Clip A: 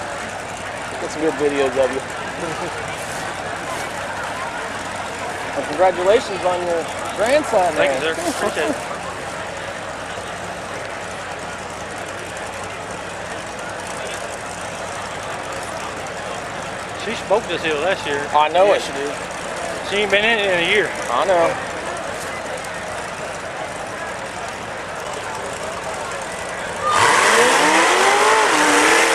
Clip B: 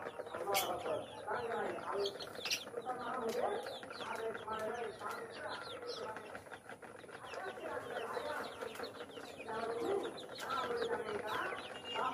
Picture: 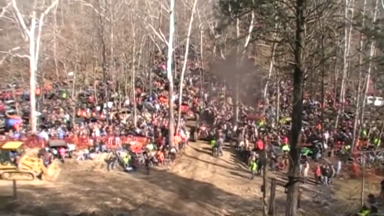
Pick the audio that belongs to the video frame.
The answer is A